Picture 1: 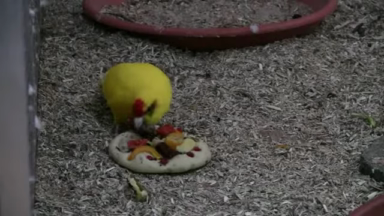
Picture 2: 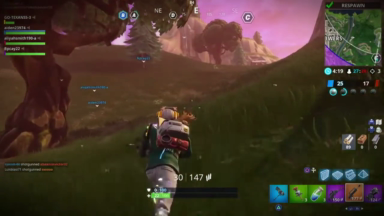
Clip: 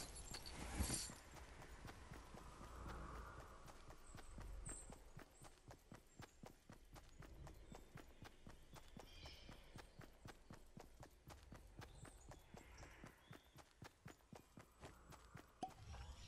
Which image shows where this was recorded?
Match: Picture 2